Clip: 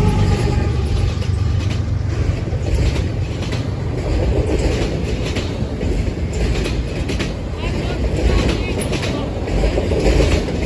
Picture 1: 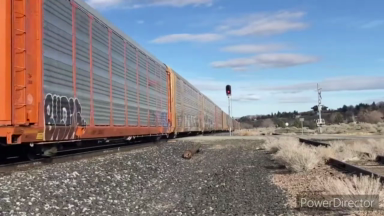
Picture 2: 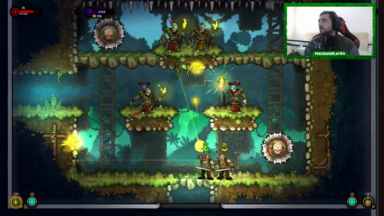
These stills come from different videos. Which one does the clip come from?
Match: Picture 1